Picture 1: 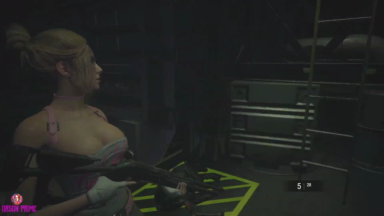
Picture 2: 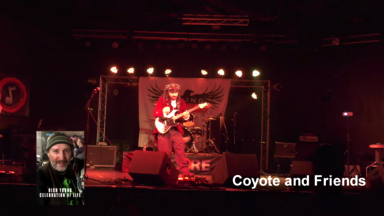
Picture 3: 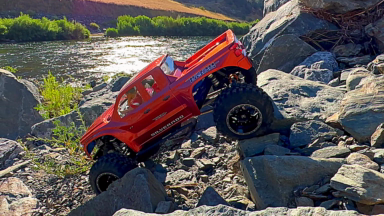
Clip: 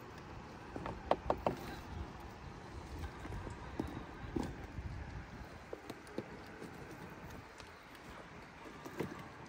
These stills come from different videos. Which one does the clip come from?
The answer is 3